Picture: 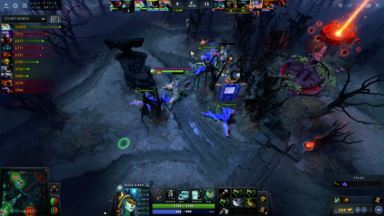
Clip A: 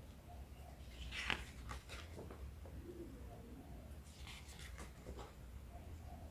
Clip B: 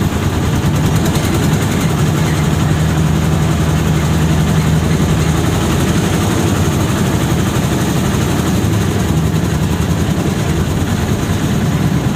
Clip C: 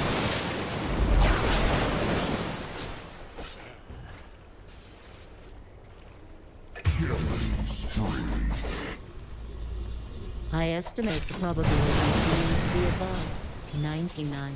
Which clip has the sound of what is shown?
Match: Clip C